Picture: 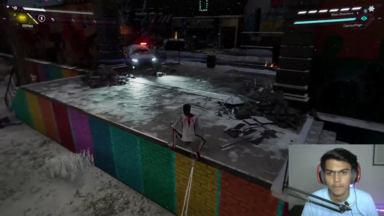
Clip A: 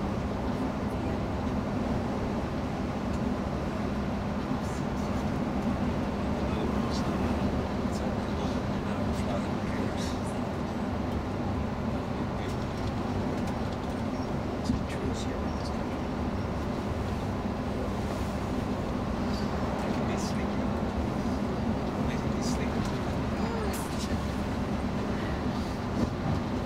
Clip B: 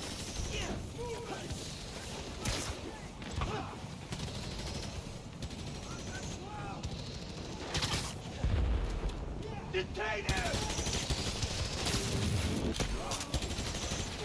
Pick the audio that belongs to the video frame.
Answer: B